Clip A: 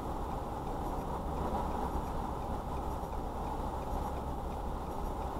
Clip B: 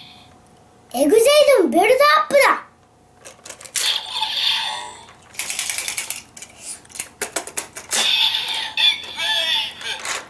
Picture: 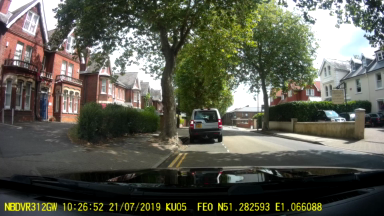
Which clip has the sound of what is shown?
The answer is A